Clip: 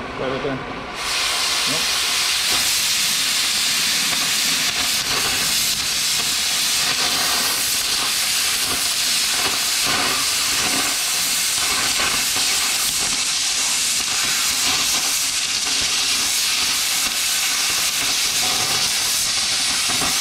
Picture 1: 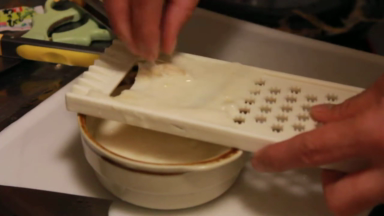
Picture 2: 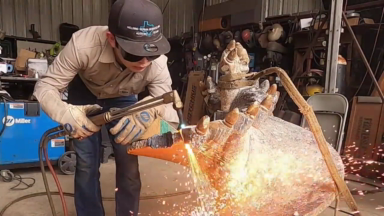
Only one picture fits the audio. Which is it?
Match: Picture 2